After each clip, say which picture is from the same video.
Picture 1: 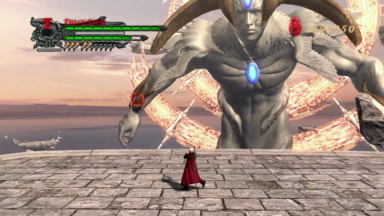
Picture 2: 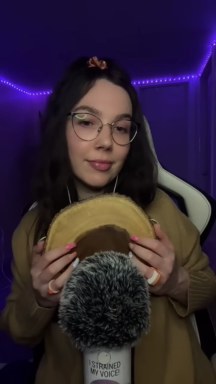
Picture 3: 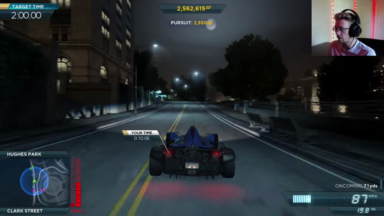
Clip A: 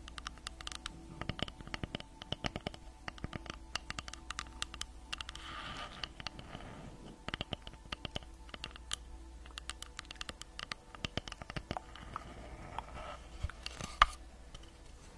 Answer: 2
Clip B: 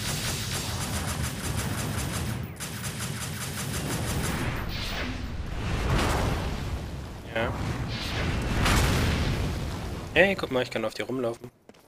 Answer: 1